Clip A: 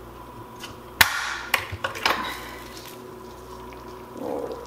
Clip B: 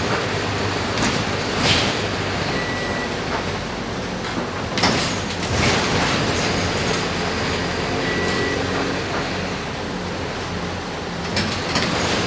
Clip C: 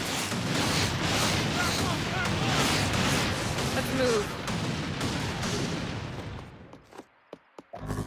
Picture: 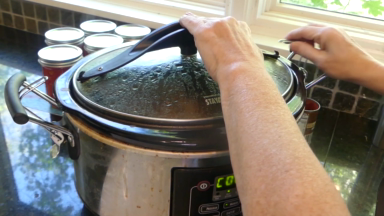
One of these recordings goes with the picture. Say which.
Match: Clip A